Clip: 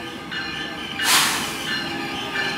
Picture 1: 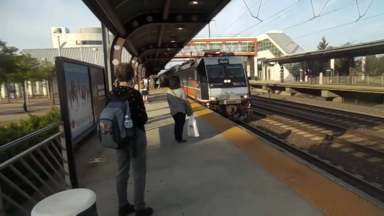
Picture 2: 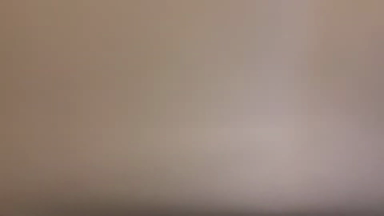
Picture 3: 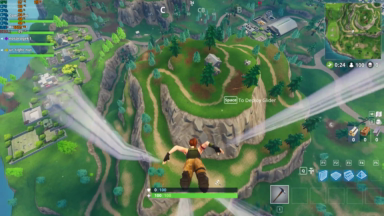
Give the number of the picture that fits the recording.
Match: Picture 1